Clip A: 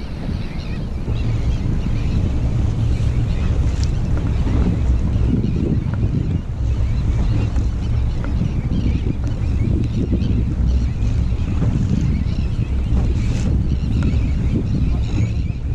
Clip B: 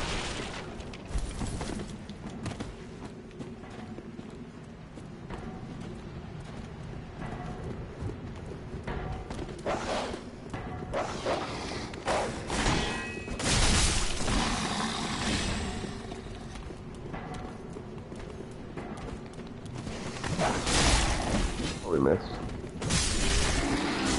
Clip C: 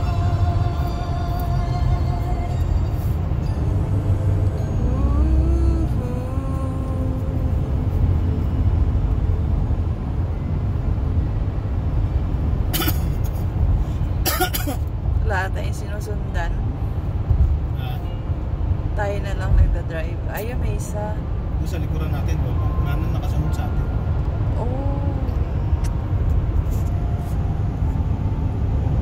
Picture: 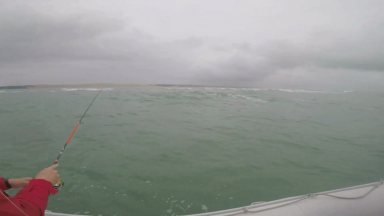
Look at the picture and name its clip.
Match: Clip A